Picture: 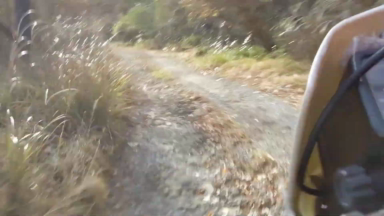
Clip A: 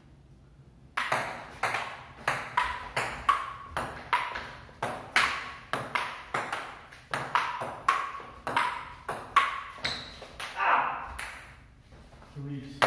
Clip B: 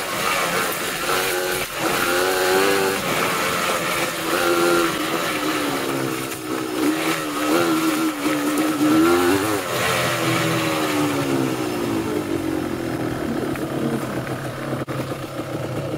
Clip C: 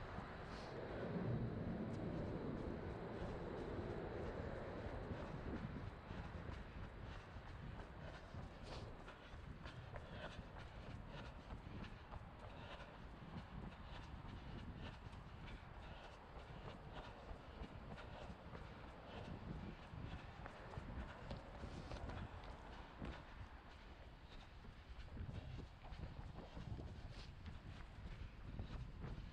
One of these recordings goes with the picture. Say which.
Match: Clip B